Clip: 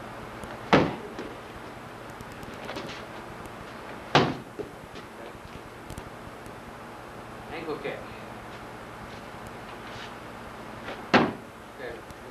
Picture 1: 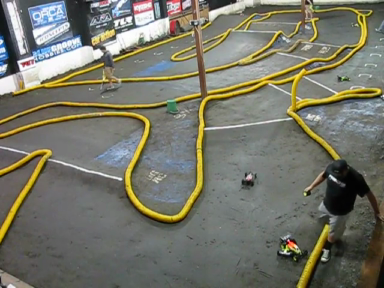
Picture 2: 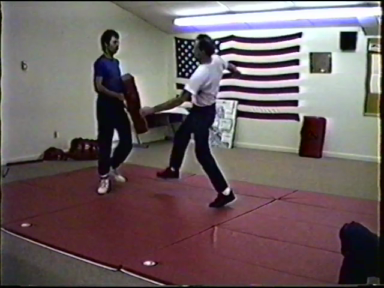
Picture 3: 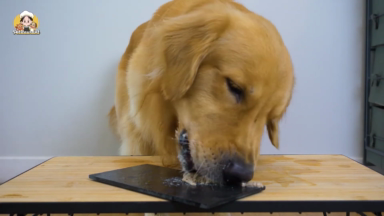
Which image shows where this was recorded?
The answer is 2